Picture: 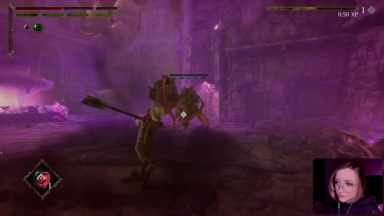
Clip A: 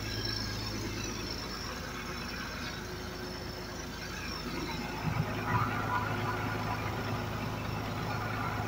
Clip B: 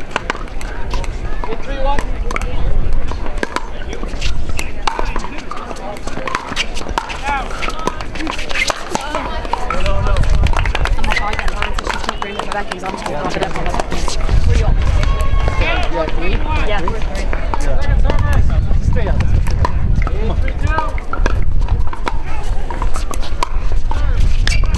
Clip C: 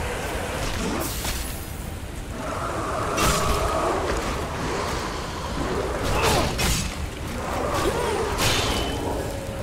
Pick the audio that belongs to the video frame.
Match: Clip C